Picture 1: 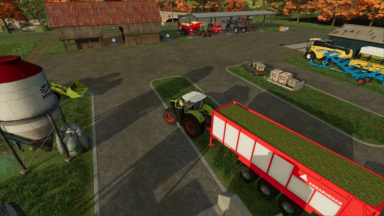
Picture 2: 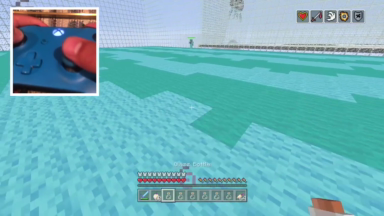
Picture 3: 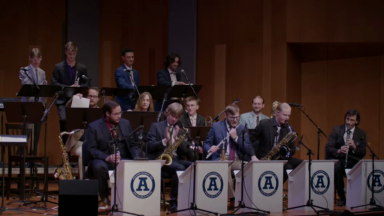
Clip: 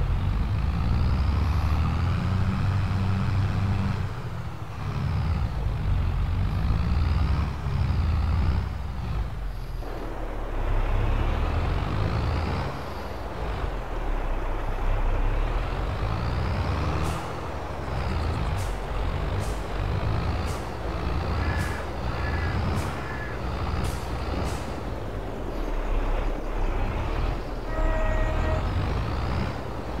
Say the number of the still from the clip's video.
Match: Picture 1